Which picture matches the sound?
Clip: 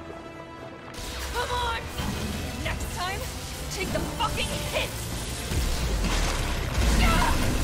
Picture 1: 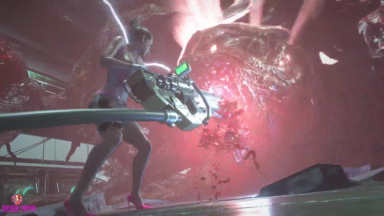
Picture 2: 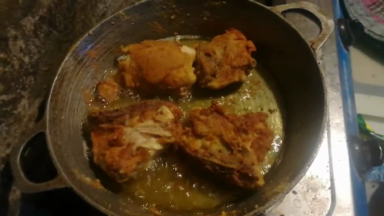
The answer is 1